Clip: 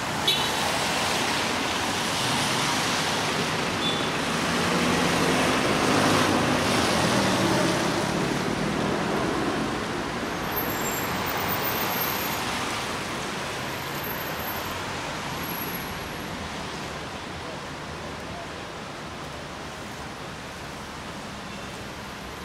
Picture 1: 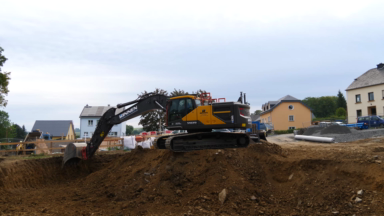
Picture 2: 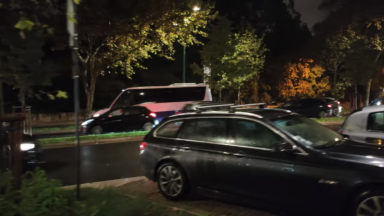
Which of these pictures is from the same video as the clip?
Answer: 2